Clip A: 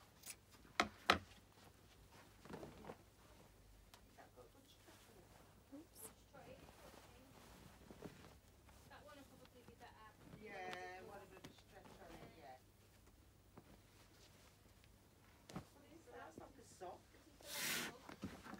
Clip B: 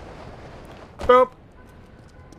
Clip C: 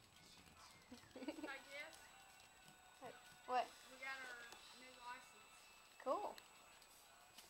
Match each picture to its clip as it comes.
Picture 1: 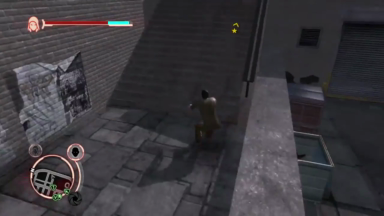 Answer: B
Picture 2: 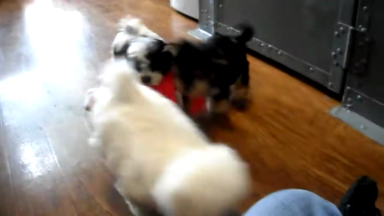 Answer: C